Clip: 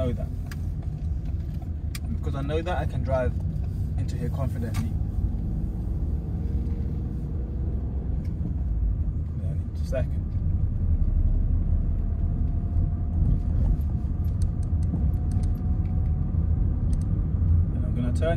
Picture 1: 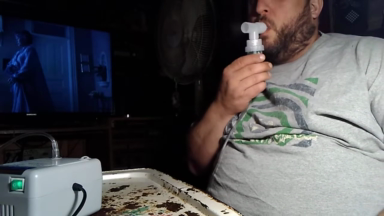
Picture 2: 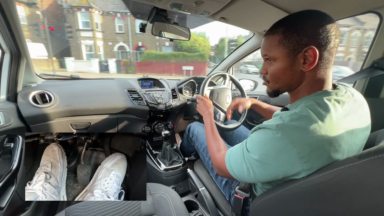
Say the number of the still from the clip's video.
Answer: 2